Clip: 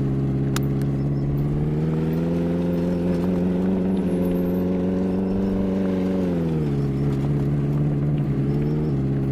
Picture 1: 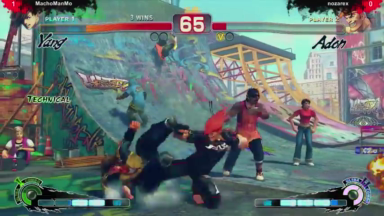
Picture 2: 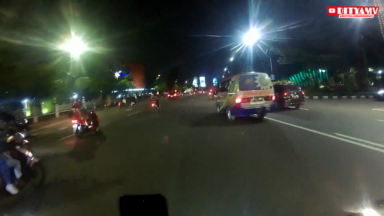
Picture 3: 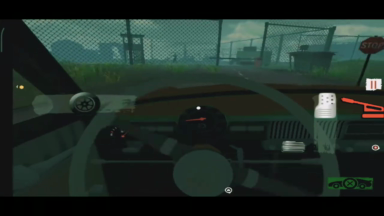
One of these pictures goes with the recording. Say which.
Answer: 3